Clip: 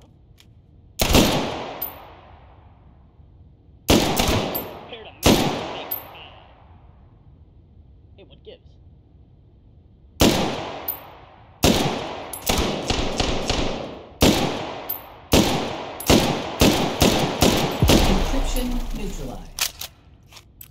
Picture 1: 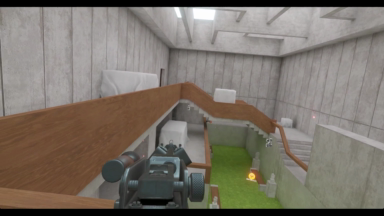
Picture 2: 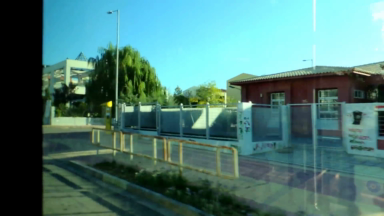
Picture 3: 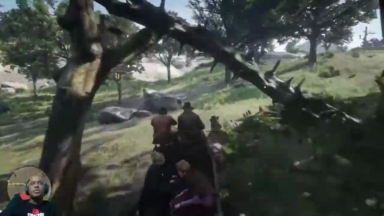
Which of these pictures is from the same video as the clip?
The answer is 1